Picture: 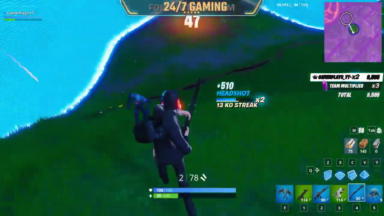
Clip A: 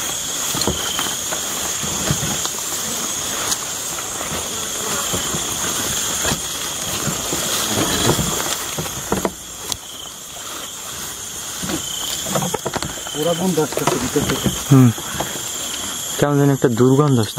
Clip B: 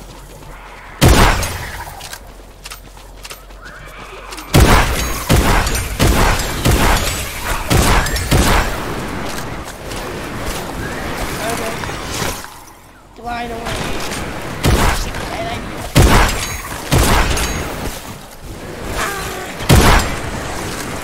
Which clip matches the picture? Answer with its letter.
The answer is B